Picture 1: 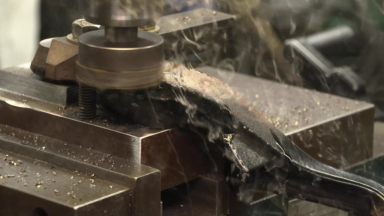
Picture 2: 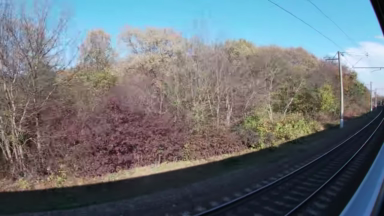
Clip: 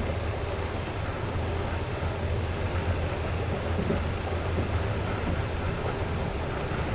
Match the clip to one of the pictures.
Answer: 2